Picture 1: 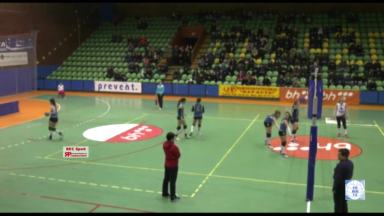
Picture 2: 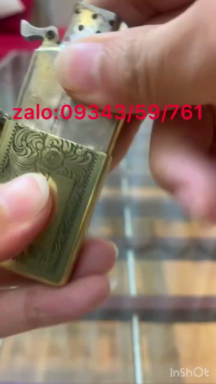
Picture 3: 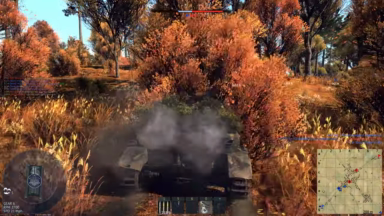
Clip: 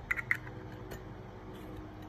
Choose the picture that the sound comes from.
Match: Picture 2